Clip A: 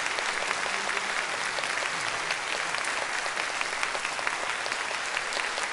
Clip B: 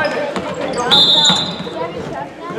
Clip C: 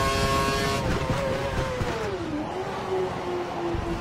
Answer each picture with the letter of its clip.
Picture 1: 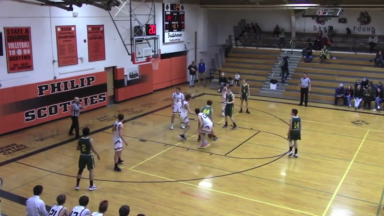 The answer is B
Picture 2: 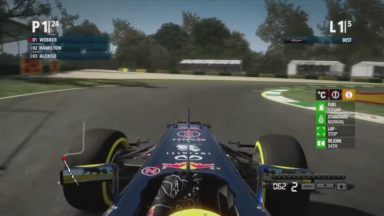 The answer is C